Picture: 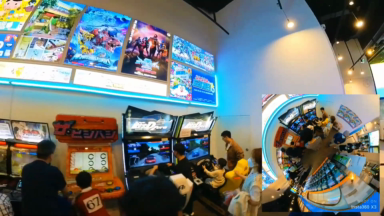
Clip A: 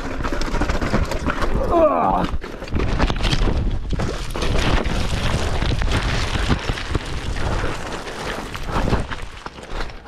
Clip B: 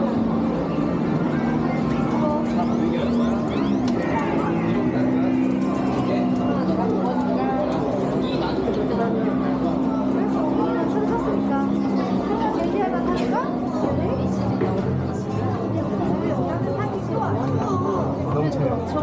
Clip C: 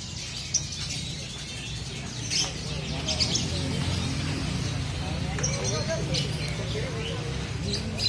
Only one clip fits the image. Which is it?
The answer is B